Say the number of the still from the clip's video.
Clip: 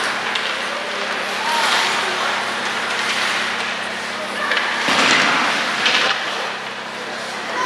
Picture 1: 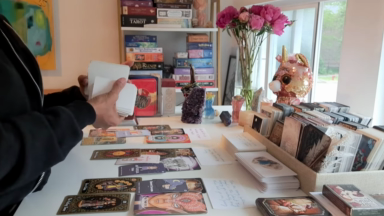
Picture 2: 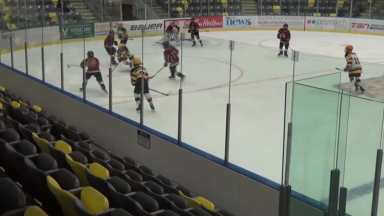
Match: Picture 2